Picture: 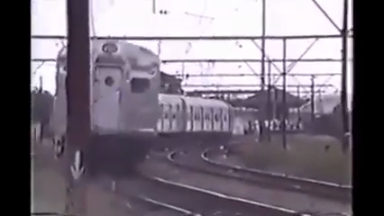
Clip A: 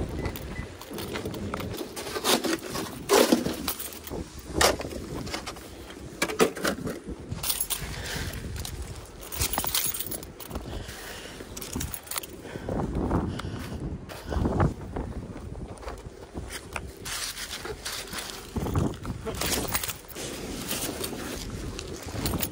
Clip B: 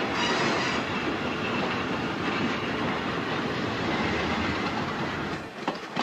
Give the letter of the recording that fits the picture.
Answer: B